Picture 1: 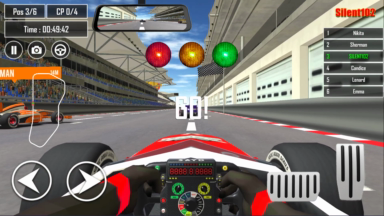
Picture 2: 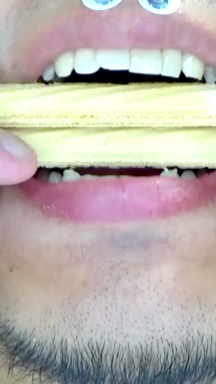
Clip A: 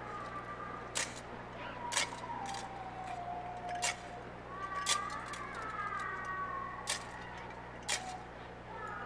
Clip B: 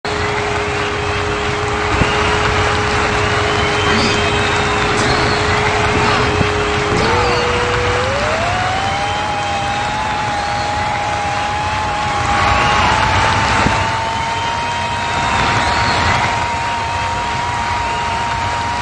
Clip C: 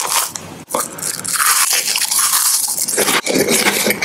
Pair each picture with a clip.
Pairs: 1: B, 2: C